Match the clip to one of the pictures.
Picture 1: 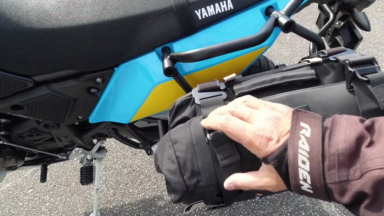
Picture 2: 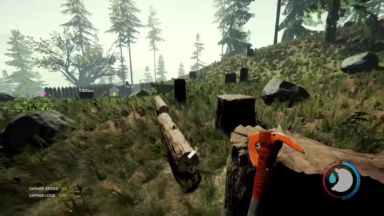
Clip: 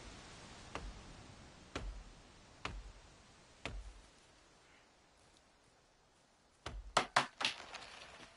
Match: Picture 2